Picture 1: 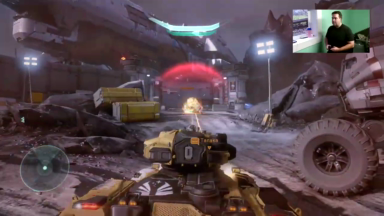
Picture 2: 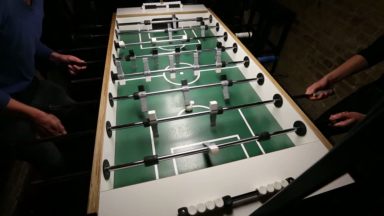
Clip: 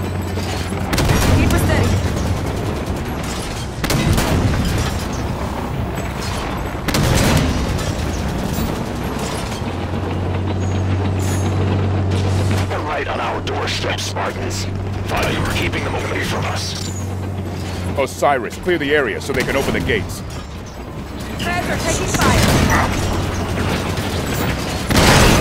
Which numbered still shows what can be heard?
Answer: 1